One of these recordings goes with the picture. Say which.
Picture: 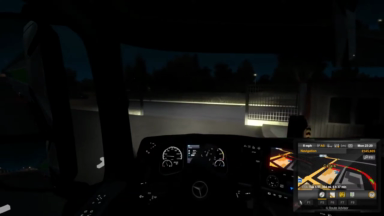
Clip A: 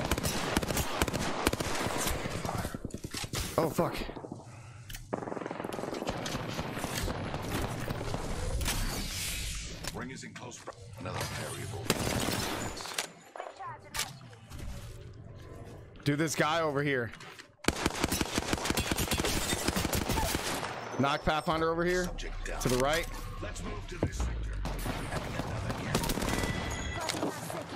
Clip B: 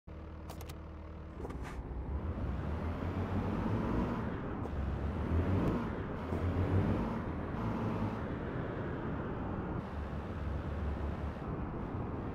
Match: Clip B